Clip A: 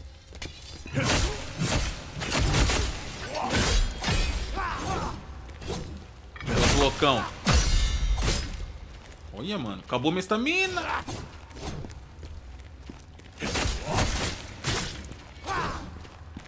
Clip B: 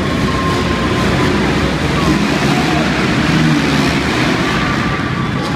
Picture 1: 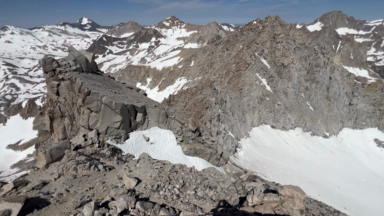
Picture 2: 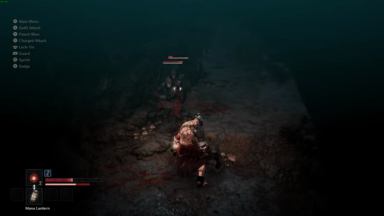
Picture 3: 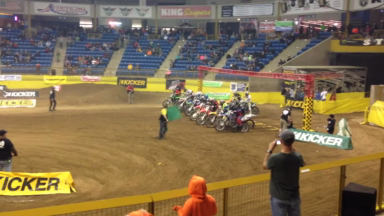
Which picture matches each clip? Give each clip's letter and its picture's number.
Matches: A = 2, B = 3